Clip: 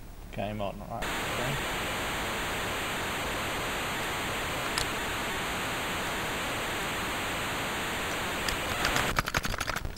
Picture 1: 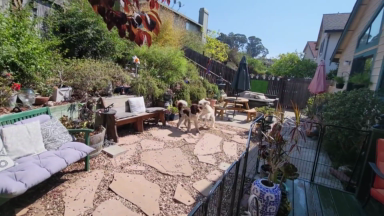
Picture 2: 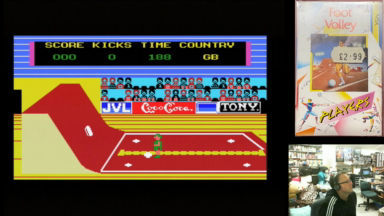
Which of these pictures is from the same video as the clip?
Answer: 2